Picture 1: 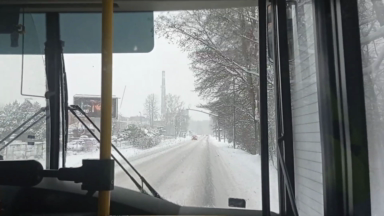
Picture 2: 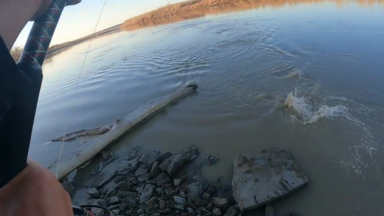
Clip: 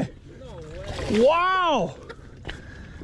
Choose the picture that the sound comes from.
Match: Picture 2